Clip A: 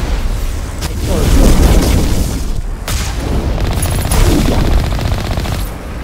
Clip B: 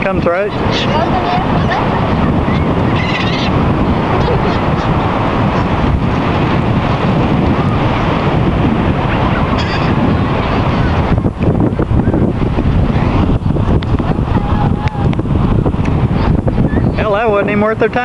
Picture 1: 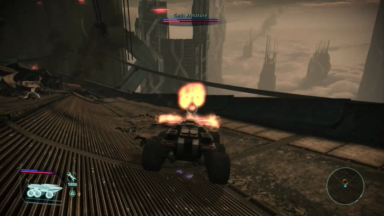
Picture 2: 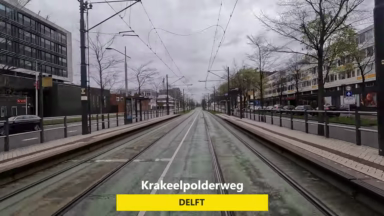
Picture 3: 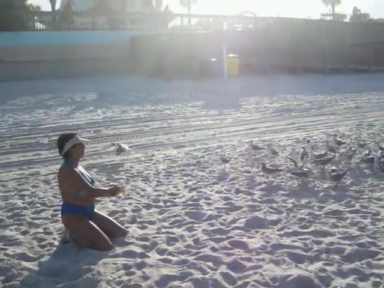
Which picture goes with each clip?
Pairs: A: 1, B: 3